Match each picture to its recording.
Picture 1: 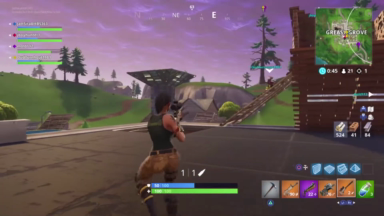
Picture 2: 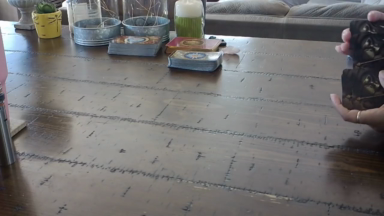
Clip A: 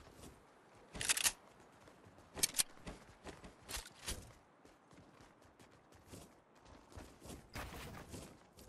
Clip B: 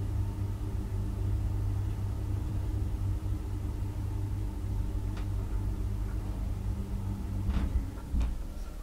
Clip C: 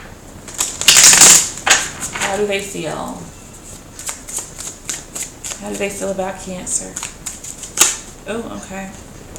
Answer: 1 A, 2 C